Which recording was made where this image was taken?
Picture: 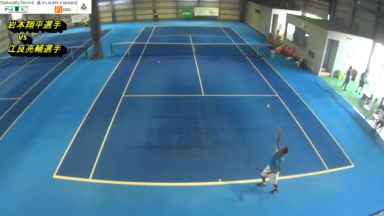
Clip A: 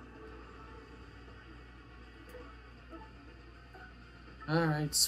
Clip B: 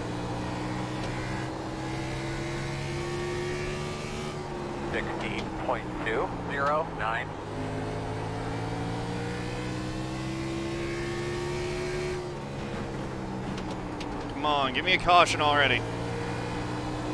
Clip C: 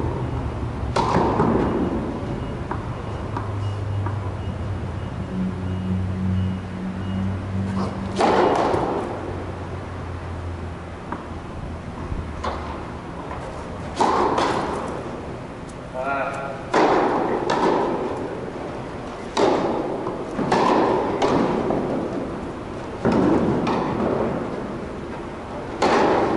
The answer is C